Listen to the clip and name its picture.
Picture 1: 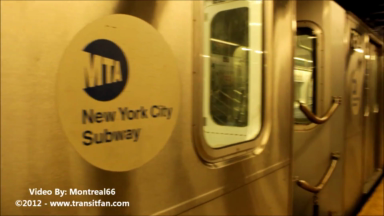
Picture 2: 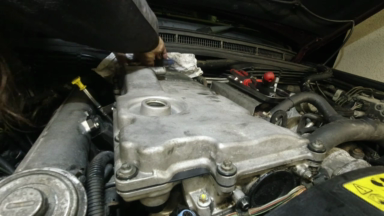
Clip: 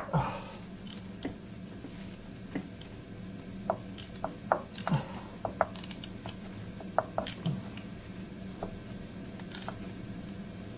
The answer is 2